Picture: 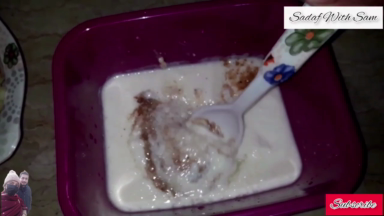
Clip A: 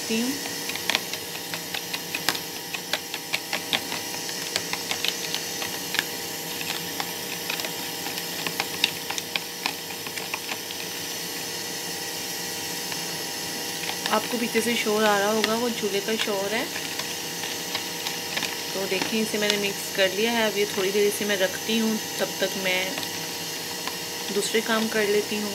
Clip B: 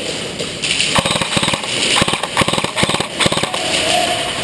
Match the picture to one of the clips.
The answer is A